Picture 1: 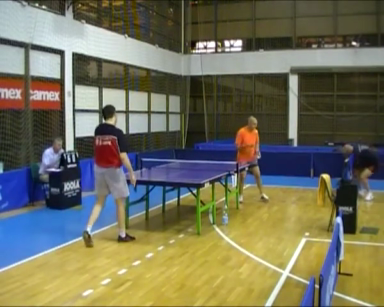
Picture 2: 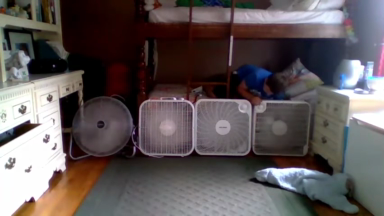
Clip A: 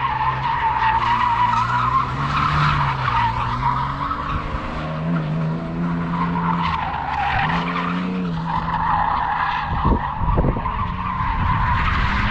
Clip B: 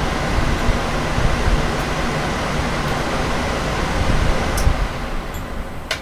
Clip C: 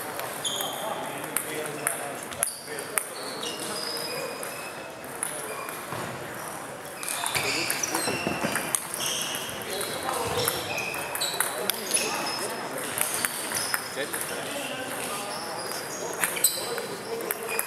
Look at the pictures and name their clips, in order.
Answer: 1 C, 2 B